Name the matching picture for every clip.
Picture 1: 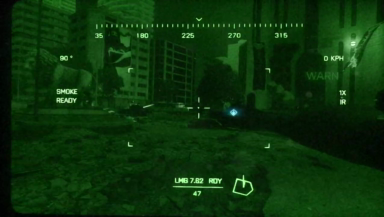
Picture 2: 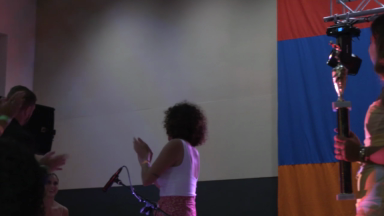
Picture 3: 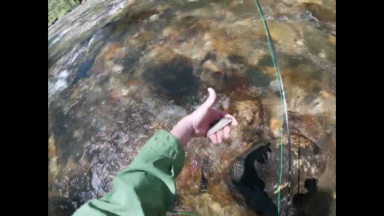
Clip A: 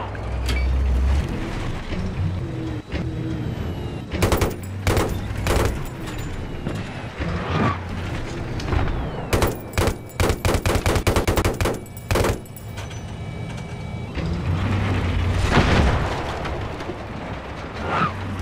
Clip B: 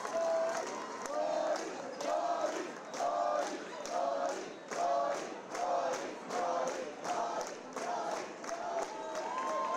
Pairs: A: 1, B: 2